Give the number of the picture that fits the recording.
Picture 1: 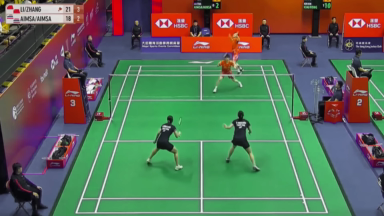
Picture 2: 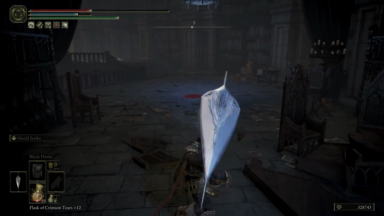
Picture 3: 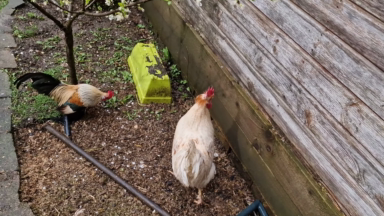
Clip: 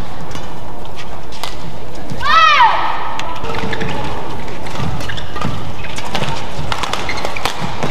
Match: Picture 1